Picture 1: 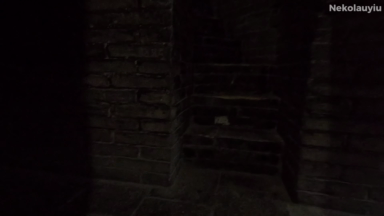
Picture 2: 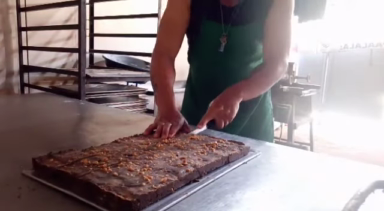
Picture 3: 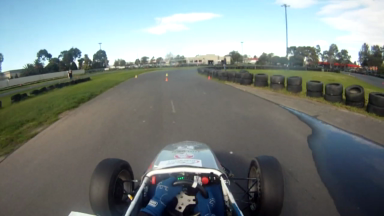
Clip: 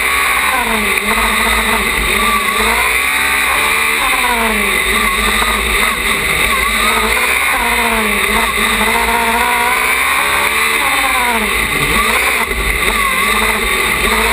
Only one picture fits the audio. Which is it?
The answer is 3